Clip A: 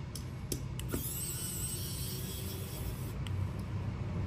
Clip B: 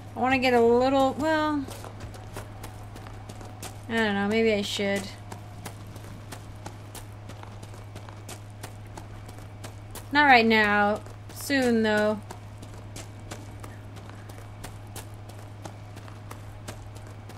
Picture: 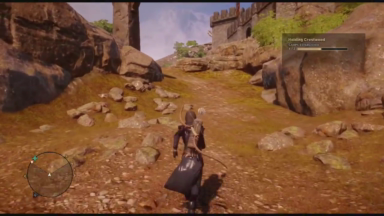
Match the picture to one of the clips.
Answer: B